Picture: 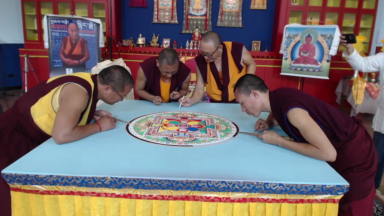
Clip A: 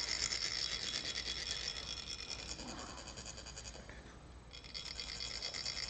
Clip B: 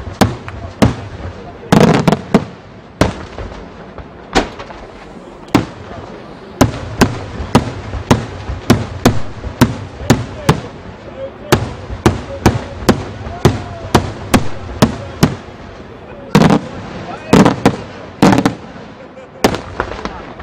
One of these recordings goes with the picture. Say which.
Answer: A